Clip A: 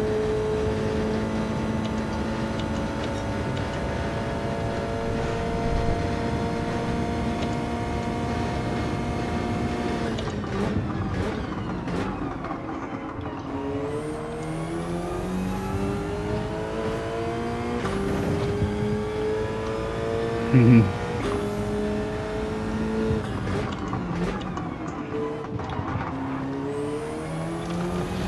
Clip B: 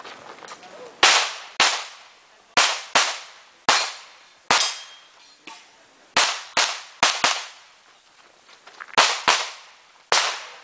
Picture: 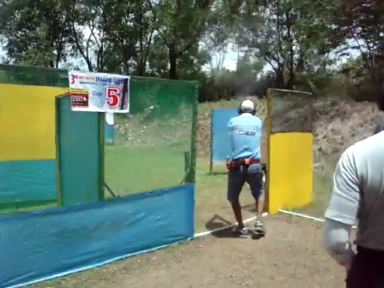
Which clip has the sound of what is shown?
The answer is B